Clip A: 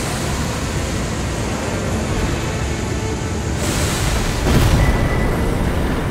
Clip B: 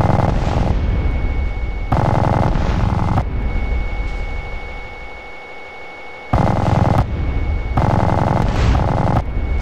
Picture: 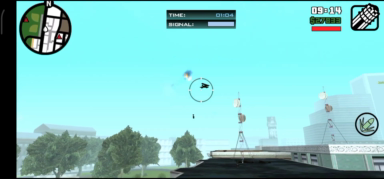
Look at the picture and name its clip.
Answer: B